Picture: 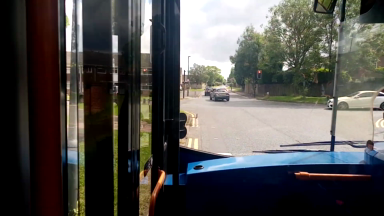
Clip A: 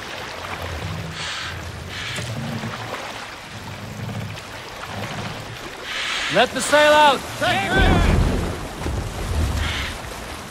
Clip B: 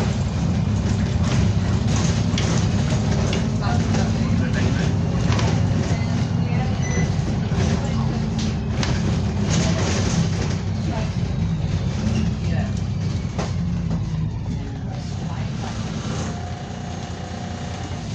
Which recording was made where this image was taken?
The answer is B